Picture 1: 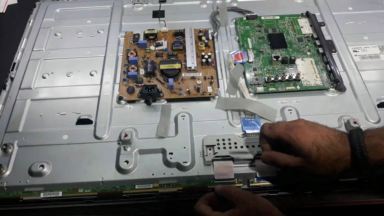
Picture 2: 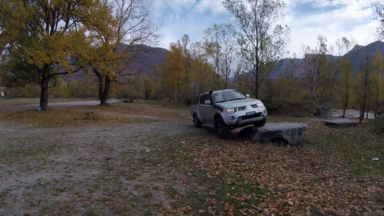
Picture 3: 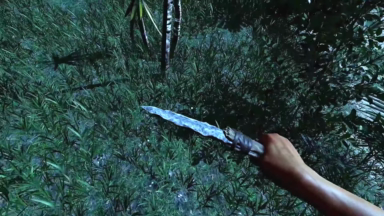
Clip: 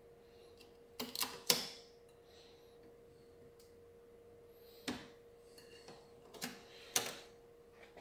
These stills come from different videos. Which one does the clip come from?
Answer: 1